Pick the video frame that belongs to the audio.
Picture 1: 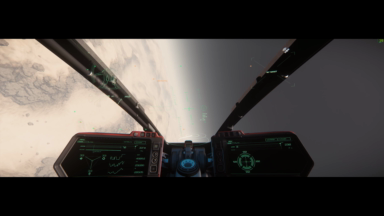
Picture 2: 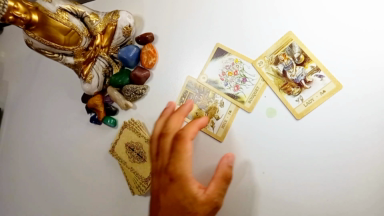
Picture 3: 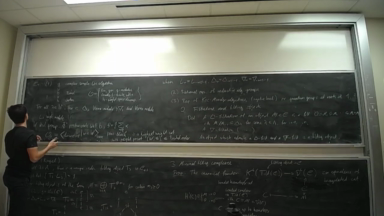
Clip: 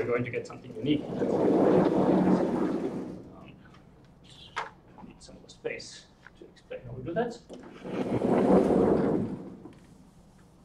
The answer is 3